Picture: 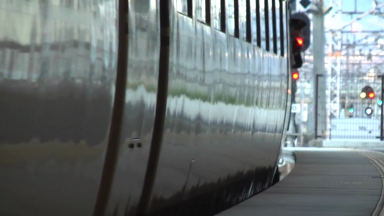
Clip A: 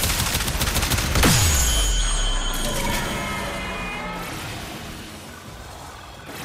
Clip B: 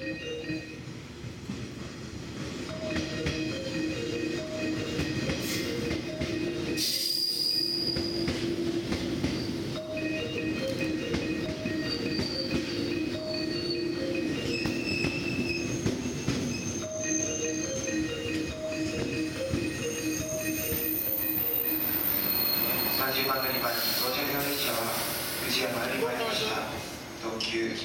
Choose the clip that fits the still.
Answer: B